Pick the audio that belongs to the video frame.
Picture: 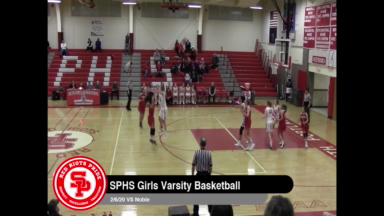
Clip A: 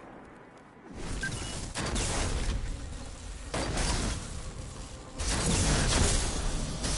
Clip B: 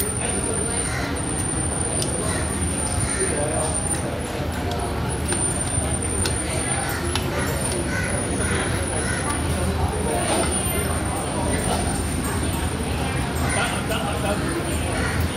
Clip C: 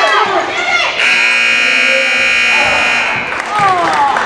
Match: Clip C